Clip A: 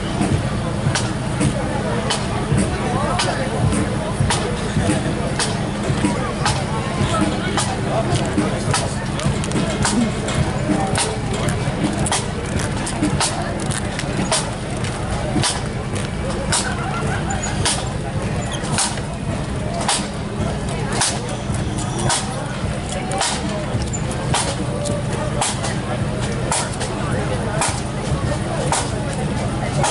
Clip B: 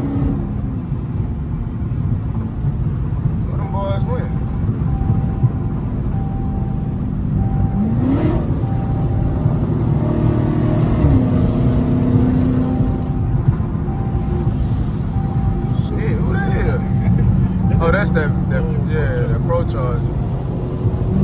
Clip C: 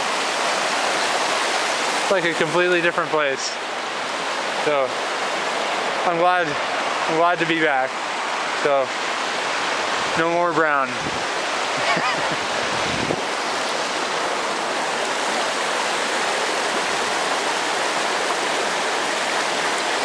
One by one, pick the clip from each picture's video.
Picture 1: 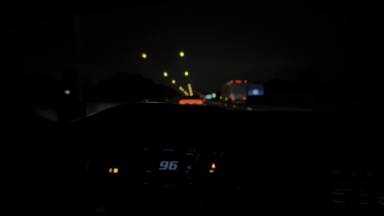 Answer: B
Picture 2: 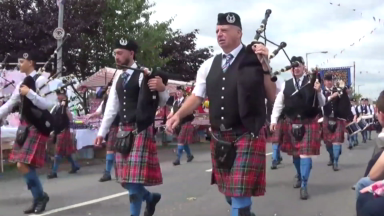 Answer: A